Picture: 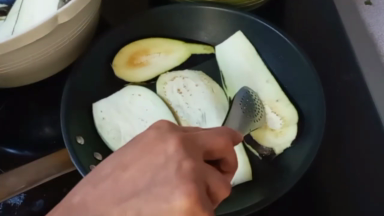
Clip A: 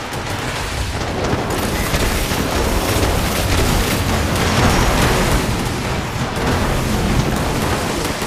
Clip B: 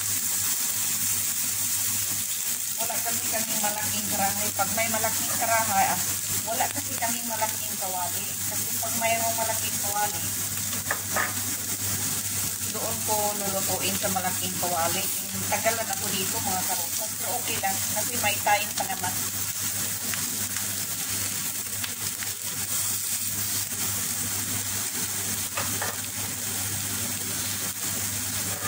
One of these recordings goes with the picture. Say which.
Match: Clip B